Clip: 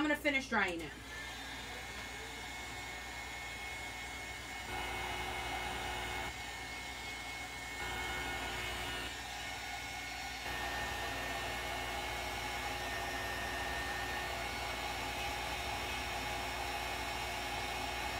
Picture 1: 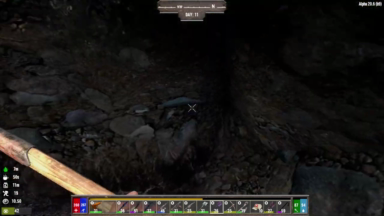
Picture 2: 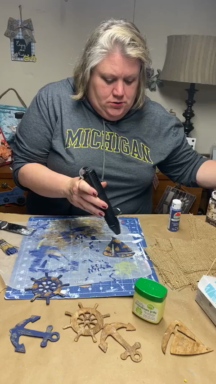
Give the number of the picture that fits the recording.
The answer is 2